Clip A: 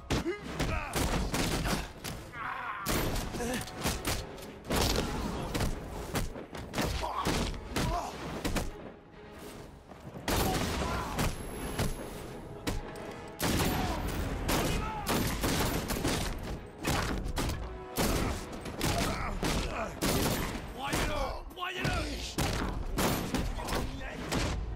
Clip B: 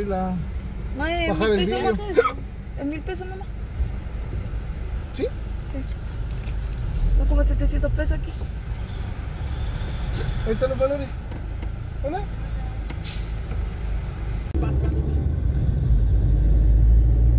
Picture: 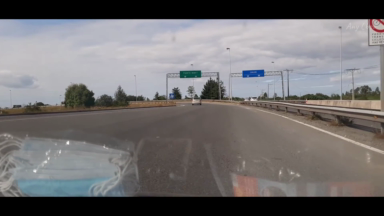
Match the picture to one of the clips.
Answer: B